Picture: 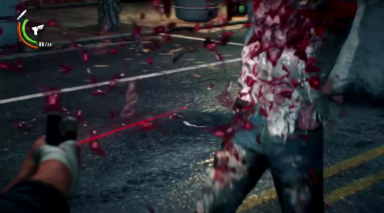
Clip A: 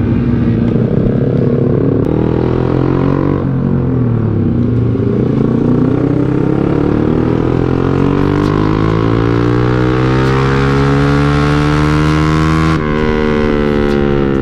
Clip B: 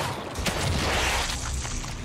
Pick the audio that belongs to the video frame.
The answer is B